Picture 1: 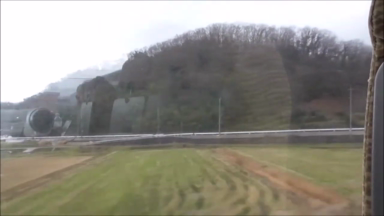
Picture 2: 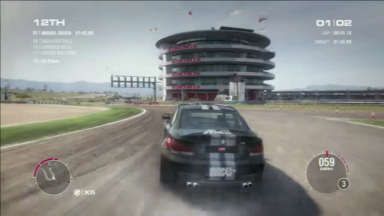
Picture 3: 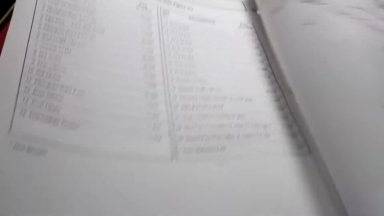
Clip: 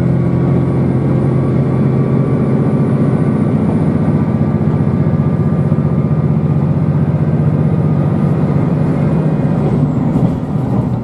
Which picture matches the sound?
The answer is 1